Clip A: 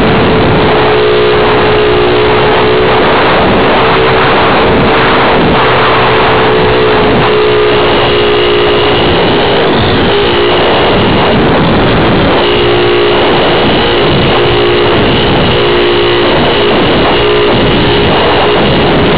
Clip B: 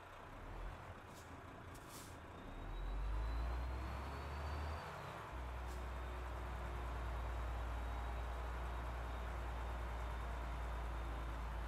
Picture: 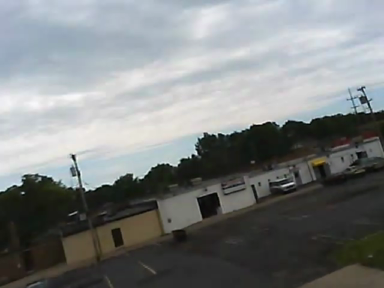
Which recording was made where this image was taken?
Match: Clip A